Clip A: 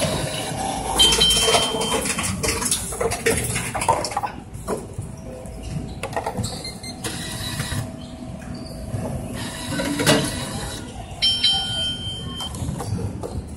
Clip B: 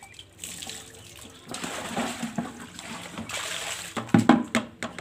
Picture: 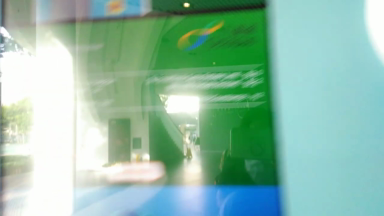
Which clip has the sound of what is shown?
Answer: A